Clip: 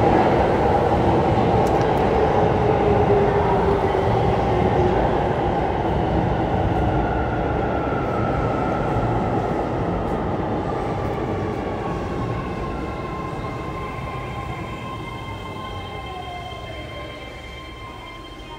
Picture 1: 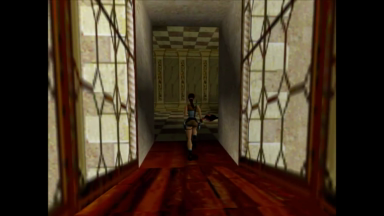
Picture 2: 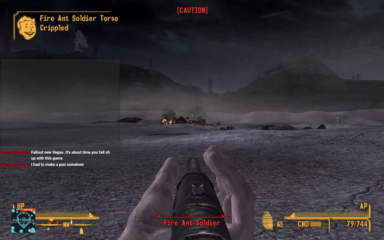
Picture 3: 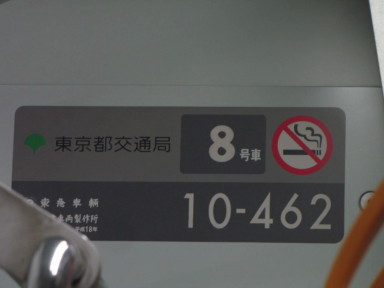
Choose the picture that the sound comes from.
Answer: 3